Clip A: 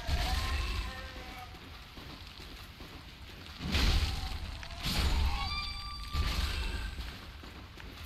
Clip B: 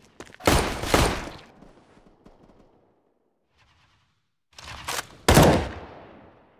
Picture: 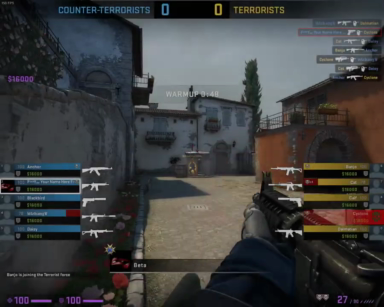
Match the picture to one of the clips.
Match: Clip B